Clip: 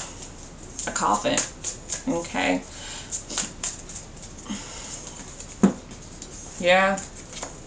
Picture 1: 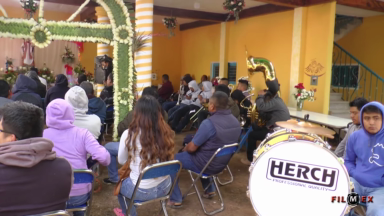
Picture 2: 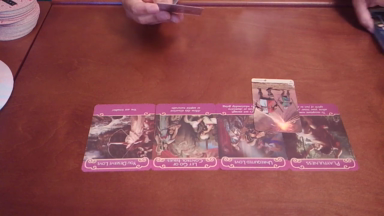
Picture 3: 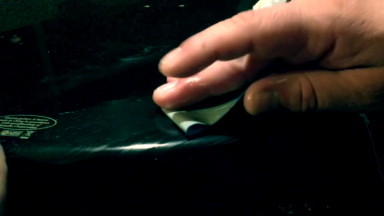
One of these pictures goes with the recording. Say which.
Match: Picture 2